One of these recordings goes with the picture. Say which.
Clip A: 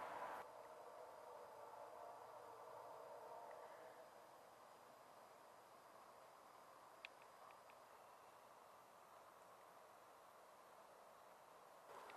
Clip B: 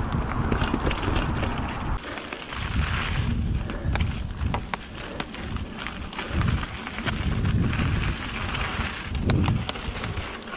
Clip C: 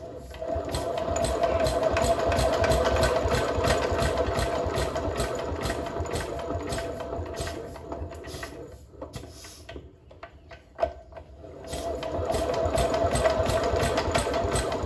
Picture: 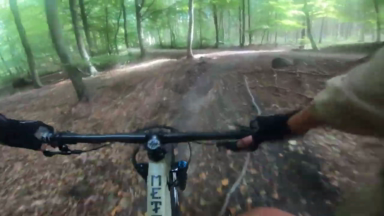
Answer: B